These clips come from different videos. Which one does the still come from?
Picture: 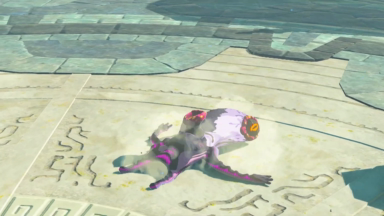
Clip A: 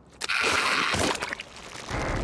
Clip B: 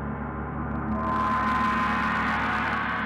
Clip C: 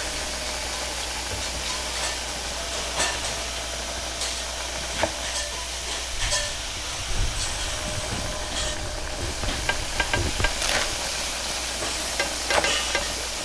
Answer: A